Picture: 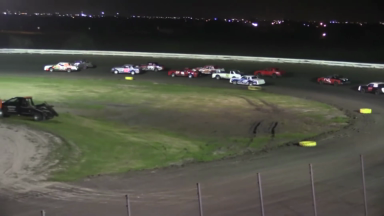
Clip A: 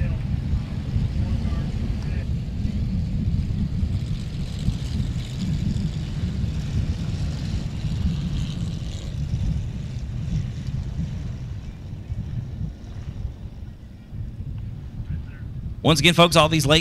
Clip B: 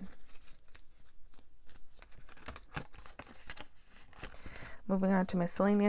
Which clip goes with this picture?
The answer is A